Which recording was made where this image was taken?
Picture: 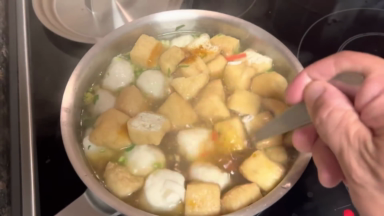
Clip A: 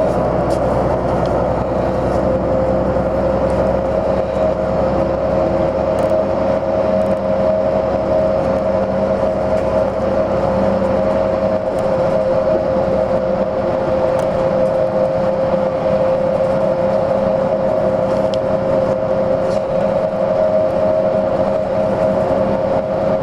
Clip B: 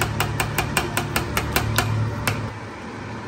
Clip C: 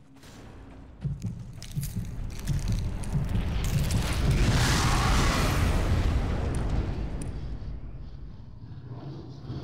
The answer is B